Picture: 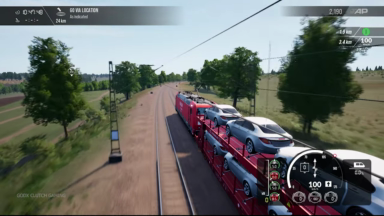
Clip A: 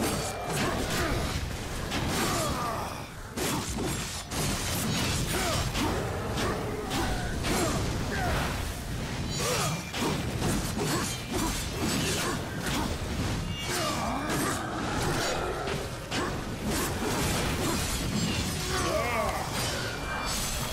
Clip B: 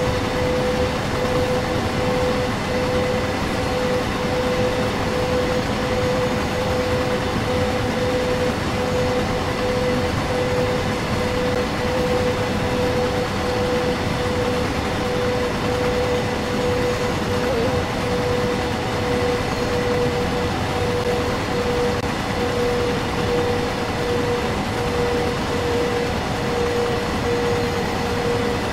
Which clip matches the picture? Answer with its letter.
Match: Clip B